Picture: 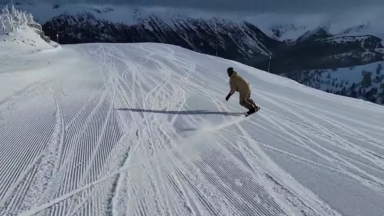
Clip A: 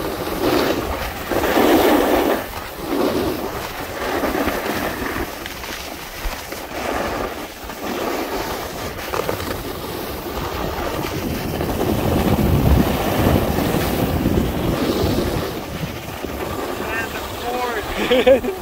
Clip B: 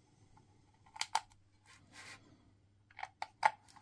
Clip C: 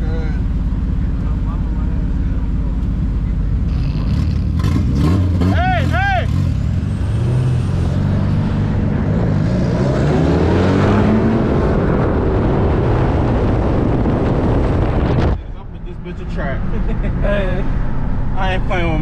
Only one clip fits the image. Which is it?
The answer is A